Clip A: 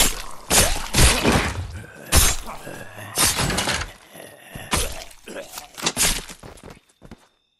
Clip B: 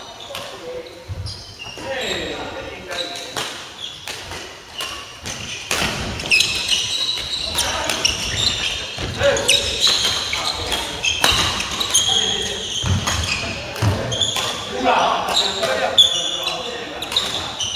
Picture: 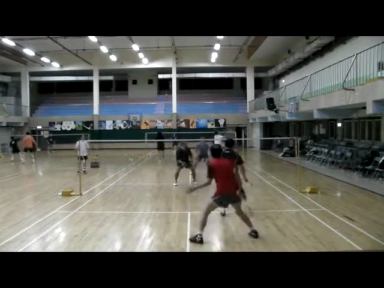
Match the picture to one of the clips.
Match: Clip B